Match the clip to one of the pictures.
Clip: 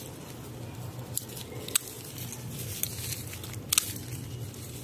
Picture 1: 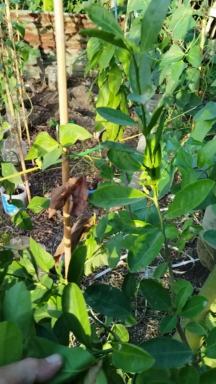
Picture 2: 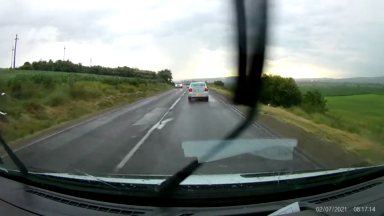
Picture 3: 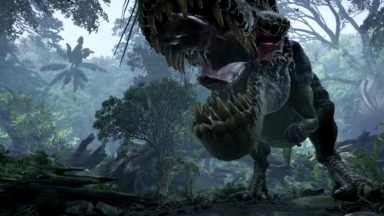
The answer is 1